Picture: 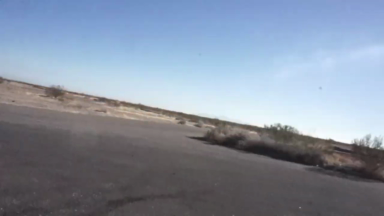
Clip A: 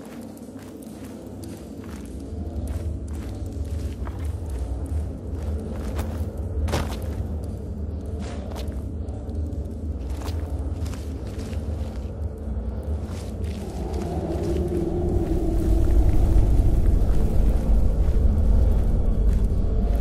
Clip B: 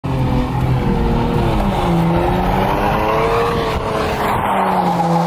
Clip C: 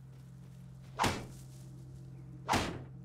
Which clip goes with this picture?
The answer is B